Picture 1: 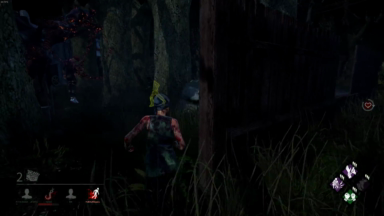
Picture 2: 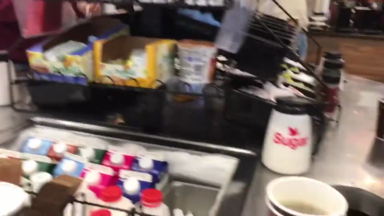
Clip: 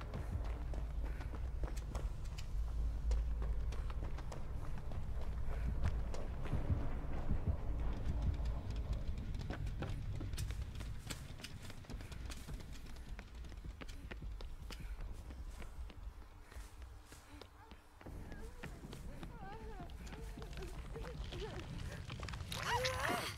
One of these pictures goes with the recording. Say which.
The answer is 1